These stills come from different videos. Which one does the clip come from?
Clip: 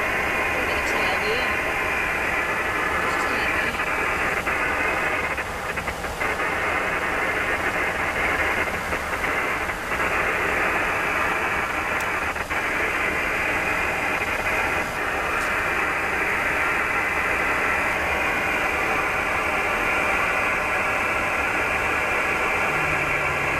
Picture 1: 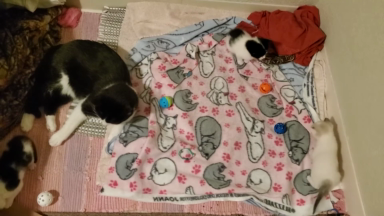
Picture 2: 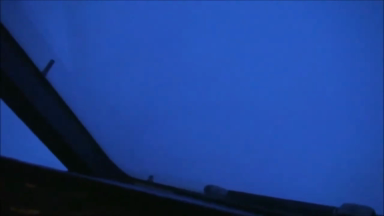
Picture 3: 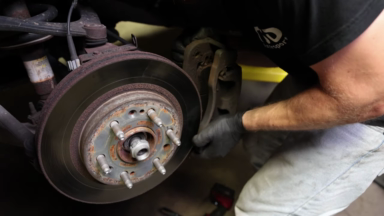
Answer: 2